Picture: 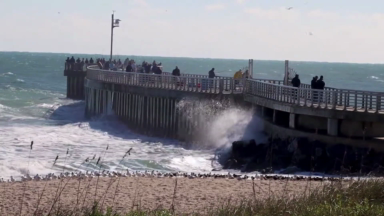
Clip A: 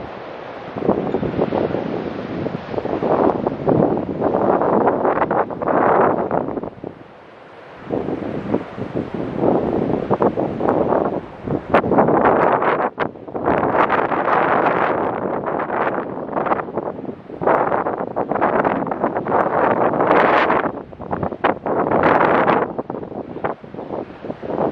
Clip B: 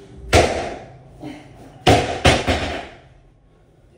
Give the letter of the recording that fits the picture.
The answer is A